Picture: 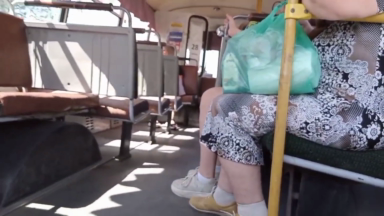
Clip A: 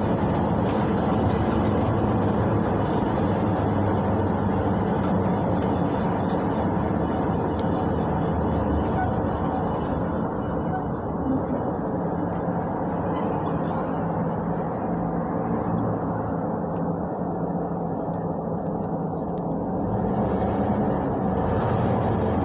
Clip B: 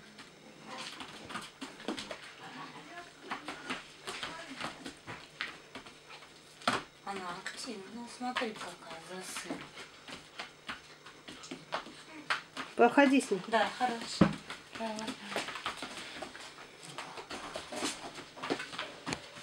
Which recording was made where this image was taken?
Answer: A